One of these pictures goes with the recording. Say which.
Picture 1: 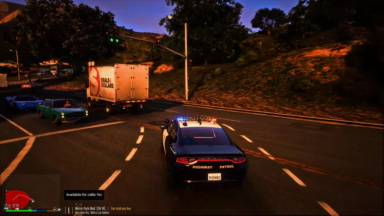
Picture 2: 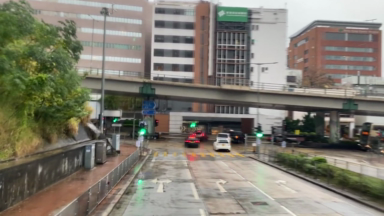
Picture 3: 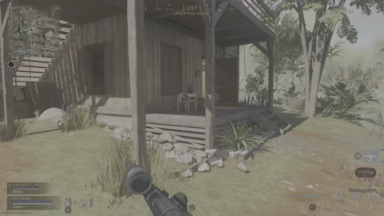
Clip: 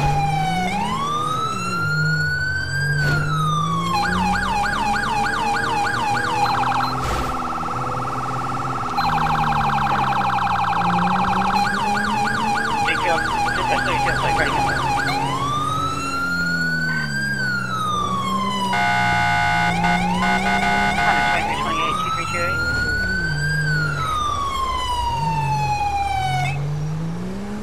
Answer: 1